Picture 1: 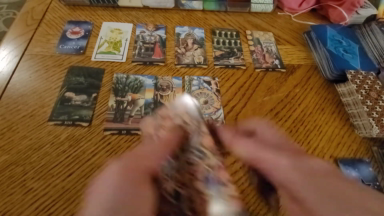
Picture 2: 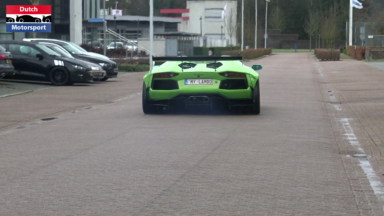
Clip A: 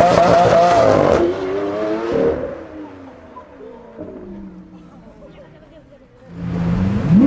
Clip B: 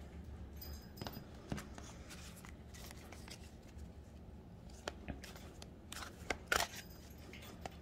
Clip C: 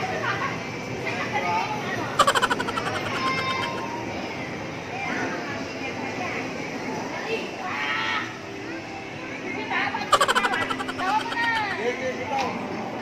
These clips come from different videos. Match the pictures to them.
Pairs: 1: B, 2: A